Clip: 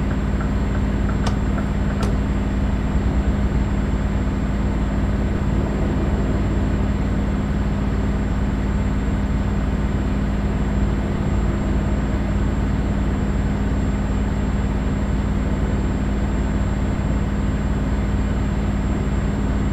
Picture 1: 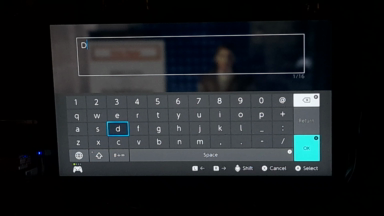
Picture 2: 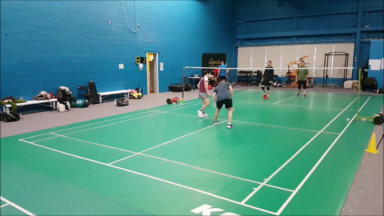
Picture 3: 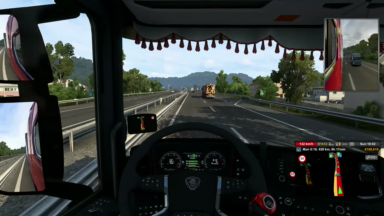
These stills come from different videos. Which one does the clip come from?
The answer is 3